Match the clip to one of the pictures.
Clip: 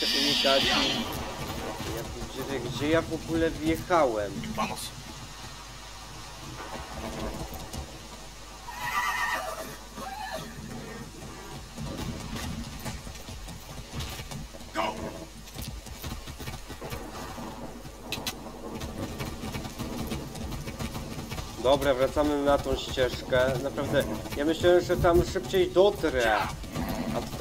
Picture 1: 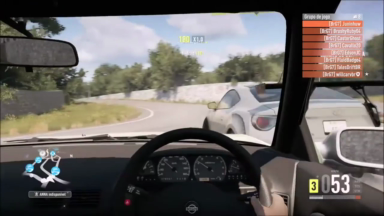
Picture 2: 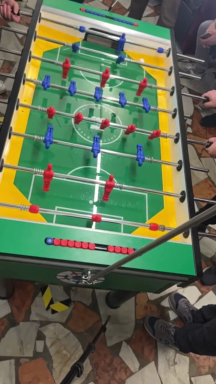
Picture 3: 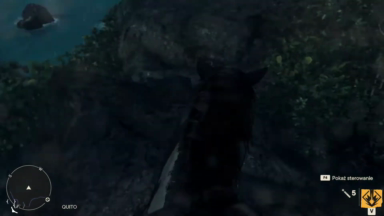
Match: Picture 3